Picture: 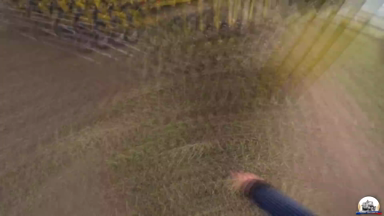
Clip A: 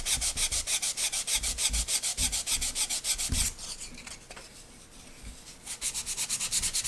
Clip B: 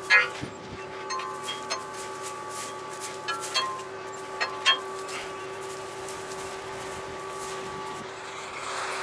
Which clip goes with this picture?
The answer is B